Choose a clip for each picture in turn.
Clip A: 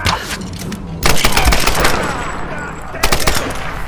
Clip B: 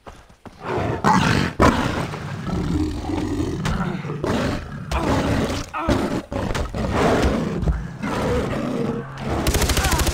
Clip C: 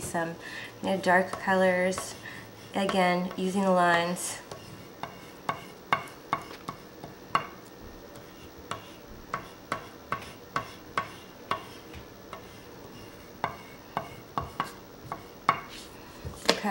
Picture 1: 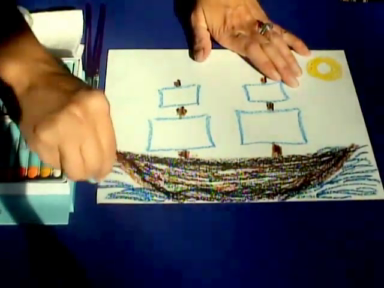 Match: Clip C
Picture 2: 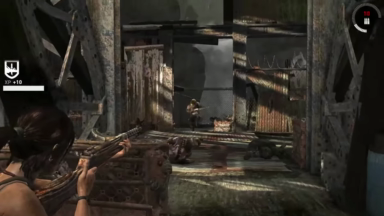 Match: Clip A